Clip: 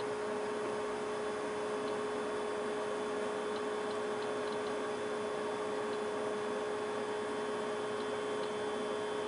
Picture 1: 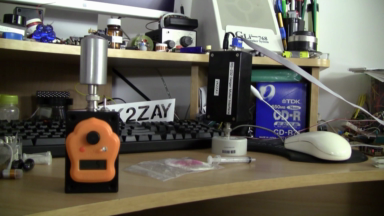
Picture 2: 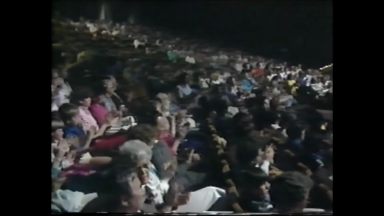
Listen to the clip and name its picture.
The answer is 1